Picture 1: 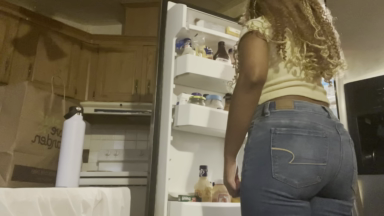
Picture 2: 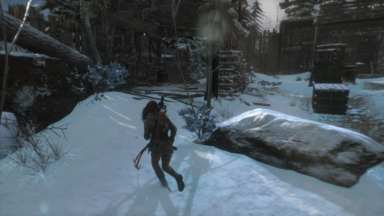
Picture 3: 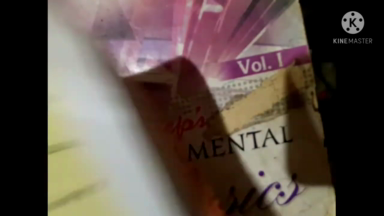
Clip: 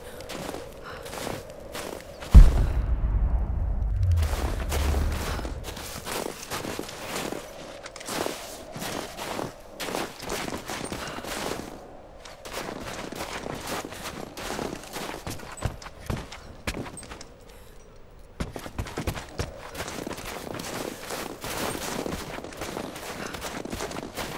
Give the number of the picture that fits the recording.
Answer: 2